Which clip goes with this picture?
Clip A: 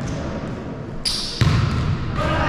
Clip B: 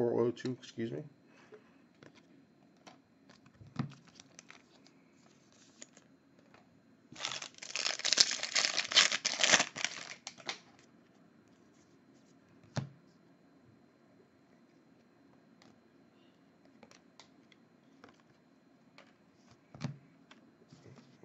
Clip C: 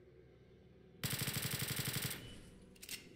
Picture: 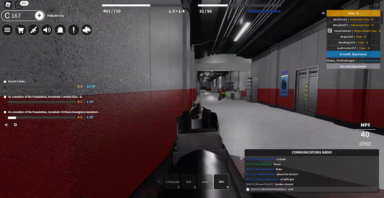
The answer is C